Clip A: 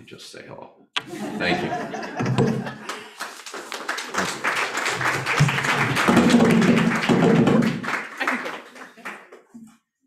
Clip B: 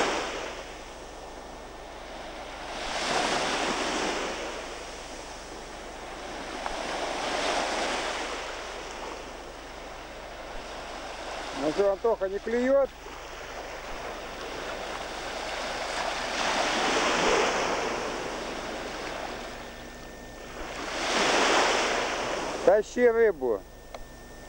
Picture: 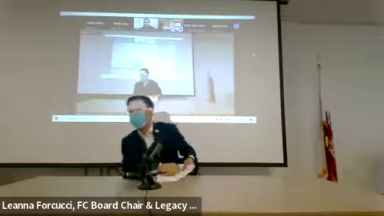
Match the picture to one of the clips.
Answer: A